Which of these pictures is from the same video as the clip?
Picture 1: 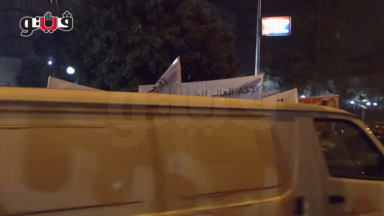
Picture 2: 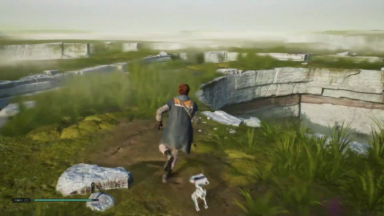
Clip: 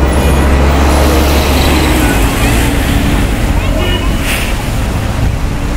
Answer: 1